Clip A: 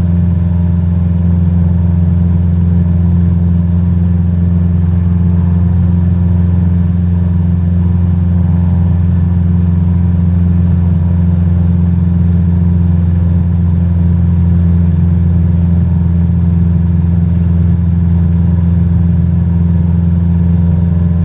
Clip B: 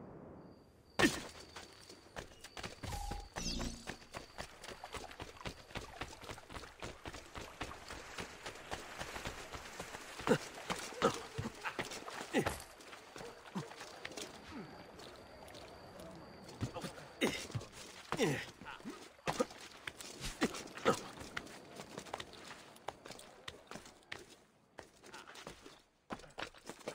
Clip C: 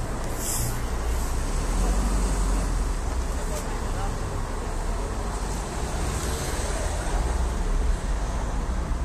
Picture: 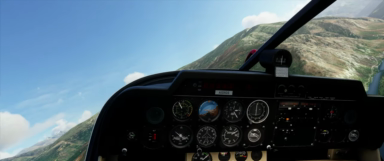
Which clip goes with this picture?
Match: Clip A